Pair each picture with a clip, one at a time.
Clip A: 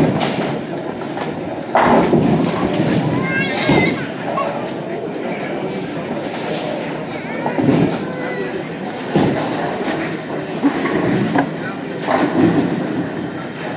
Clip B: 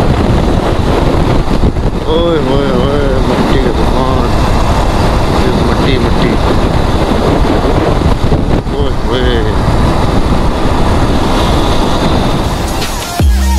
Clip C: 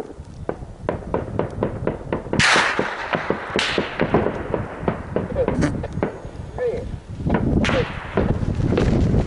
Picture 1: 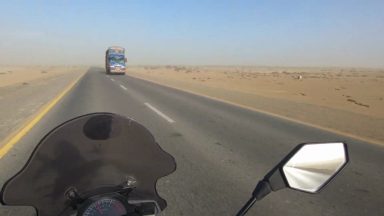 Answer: B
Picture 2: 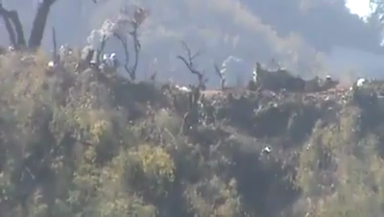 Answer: C